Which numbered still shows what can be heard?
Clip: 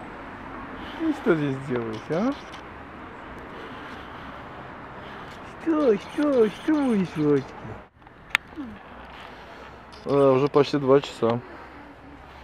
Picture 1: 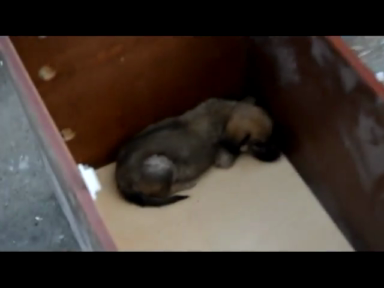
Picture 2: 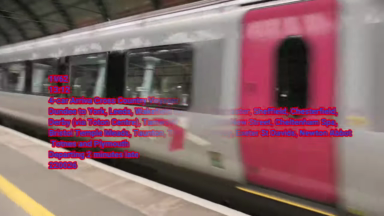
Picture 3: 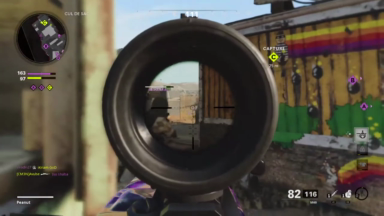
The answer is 1